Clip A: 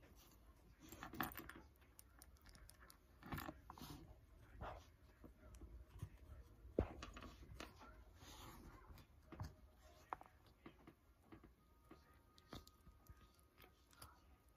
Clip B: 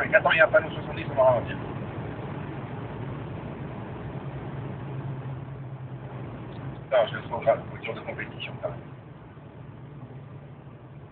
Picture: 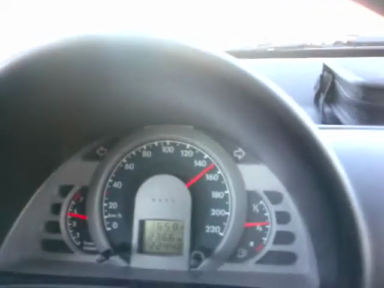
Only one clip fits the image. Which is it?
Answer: B